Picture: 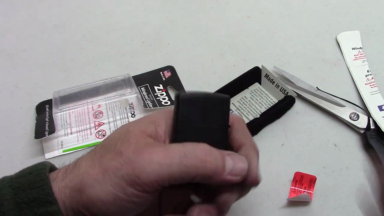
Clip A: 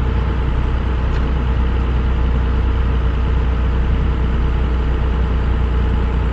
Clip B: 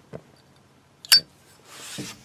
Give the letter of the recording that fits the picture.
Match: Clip B